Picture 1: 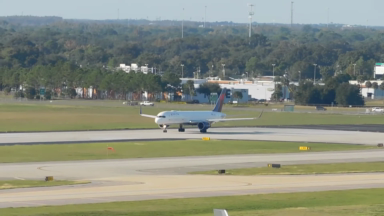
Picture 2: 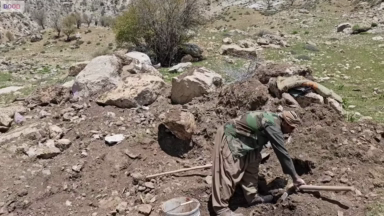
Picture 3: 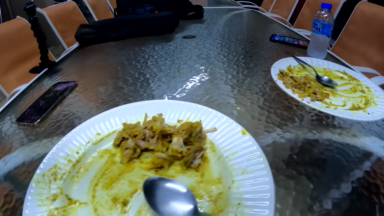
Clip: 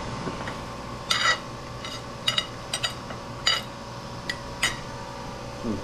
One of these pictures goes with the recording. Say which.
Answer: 3